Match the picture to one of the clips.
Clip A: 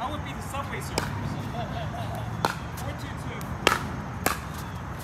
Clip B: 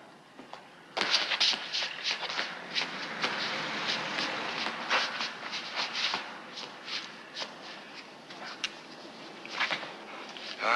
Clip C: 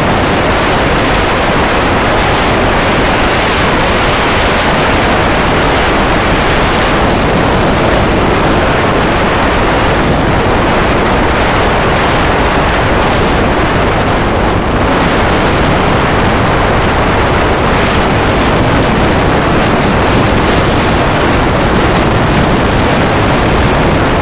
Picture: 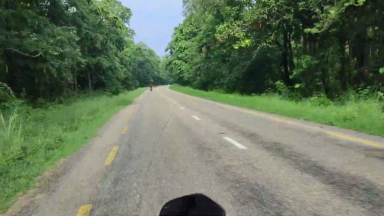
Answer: C